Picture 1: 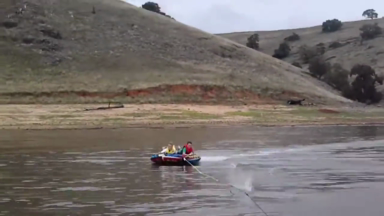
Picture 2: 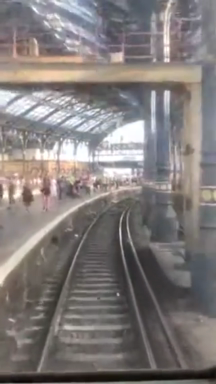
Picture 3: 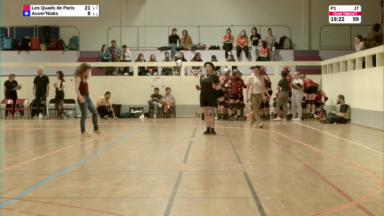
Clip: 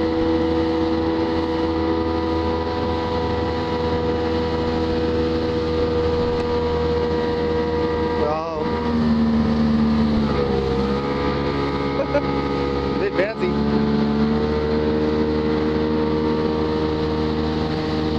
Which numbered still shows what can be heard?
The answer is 1